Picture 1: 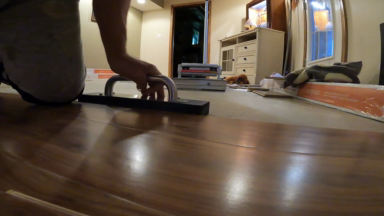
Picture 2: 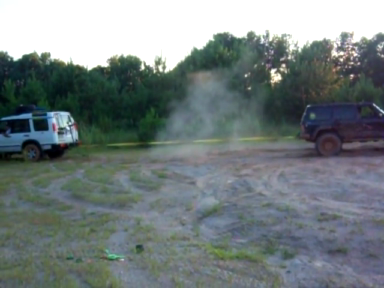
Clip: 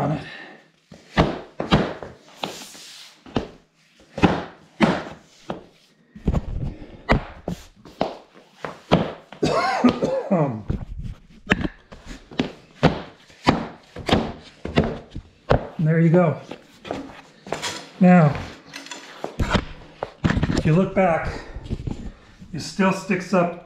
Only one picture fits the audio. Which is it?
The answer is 1